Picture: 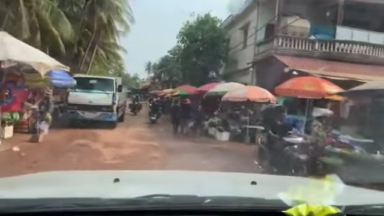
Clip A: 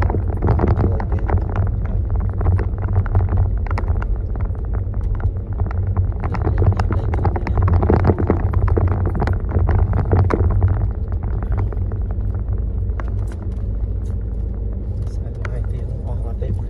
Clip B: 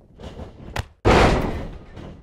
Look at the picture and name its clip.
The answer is A